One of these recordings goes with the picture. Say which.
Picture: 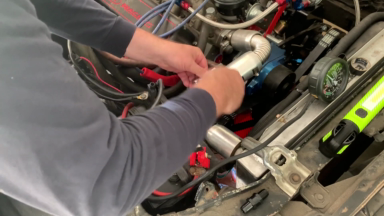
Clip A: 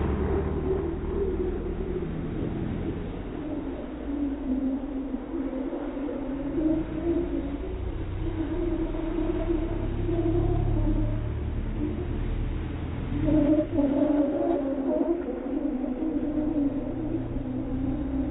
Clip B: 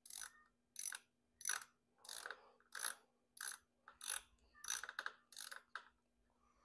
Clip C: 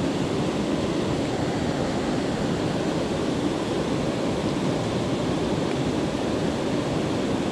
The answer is B